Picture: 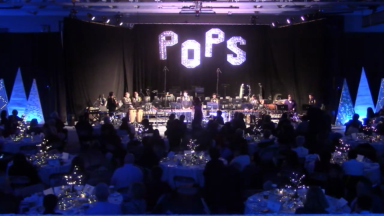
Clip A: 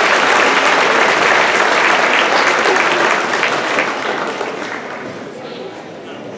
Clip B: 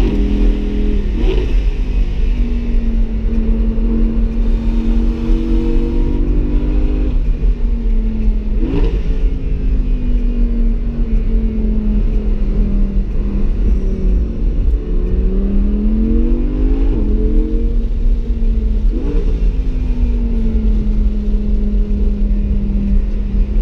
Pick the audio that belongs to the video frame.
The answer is A